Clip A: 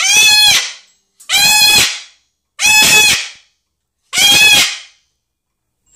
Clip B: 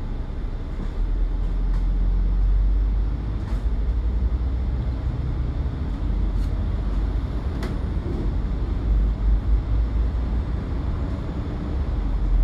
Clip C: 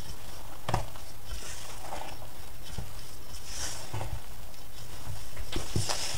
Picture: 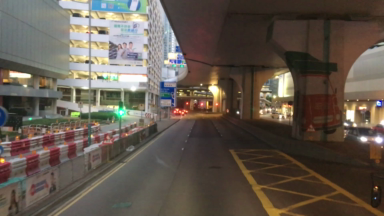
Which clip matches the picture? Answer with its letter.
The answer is B